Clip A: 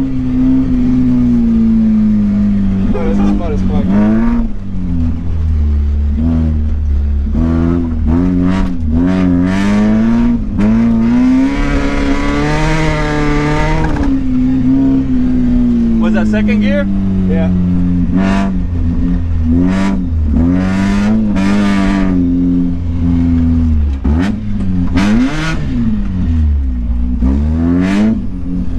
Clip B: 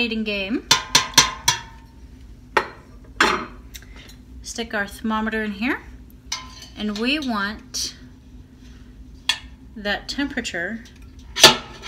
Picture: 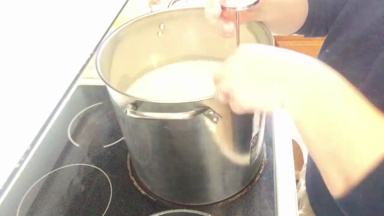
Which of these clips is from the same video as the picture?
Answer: B